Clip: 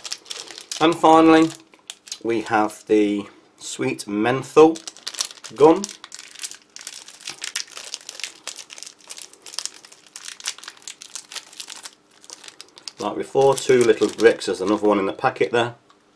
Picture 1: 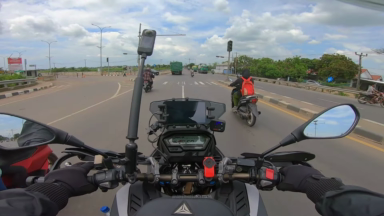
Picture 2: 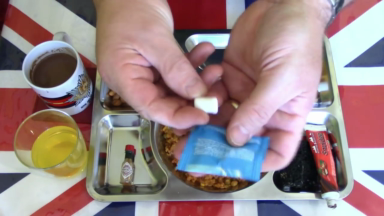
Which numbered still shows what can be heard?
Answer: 2